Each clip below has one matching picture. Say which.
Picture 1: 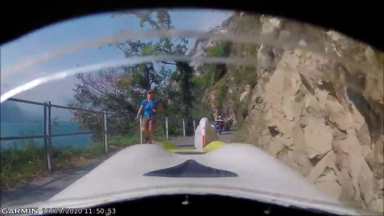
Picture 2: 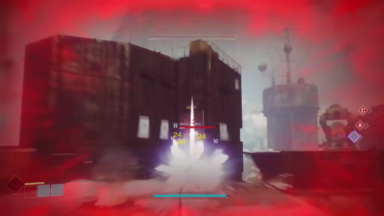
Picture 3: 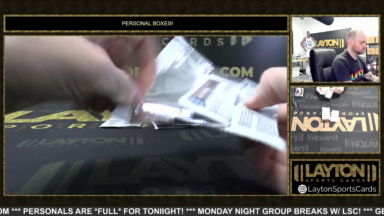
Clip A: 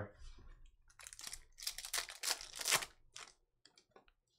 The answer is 3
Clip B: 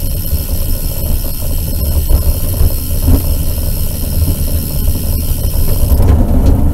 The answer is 1